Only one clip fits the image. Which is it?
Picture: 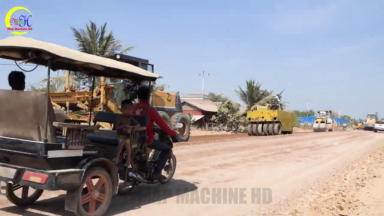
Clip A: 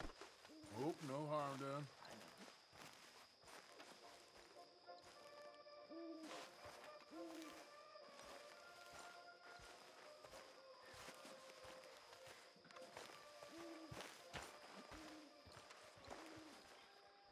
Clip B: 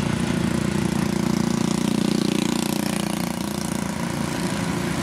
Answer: B